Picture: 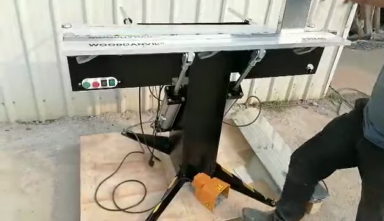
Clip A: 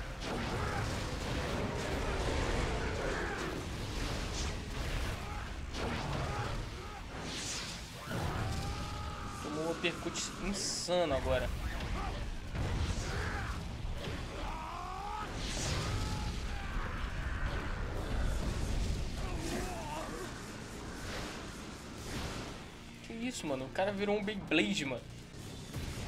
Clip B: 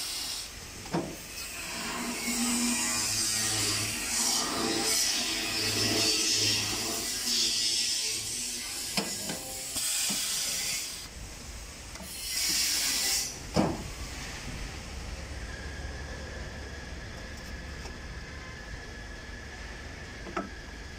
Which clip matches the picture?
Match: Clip B